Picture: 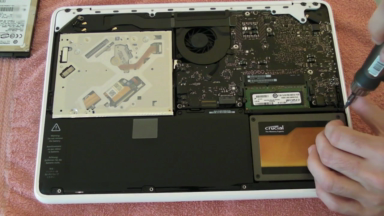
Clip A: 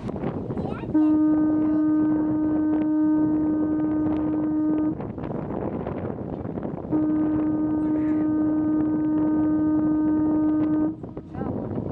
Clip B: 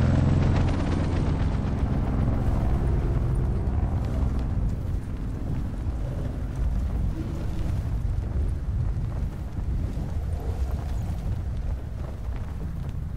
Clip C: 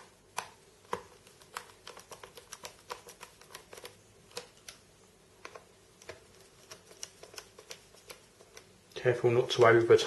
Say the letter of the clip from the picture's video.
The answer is C